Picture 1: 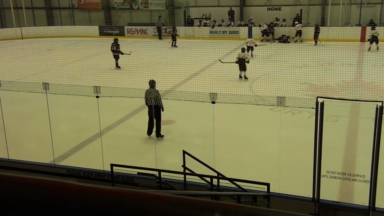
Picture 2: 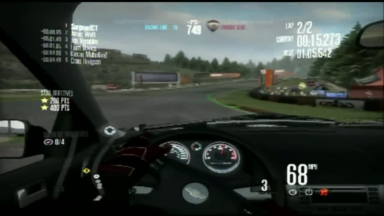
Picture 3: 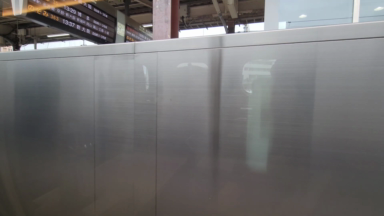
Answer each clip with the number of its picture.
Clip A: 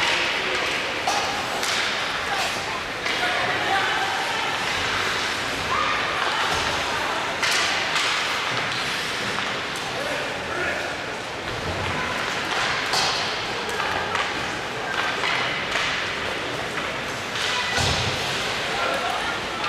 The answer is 1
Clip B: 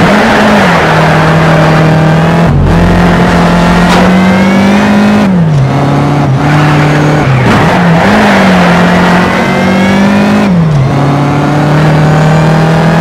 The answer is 2